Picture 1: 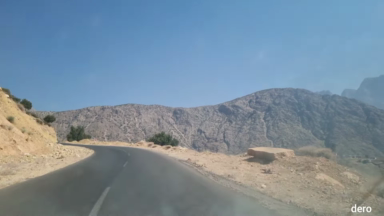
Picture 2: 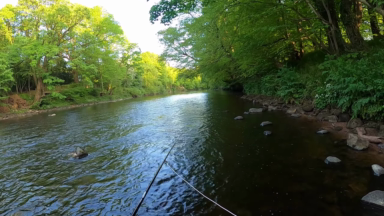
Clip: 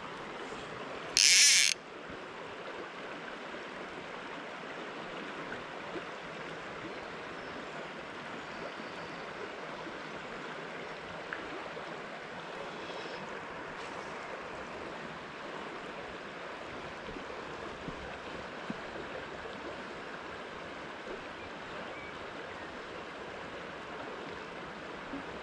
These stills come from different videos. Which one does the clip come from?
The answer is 2